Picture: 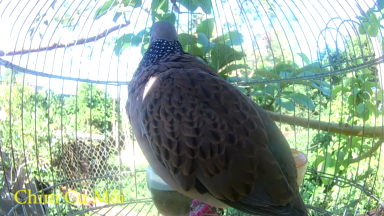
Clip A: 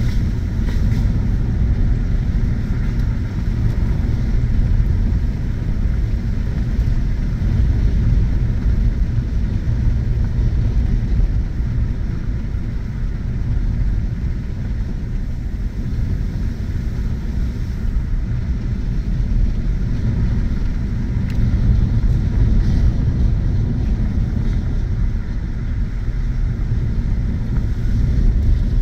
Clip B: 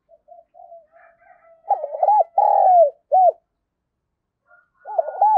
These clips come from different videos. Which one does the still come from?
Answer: B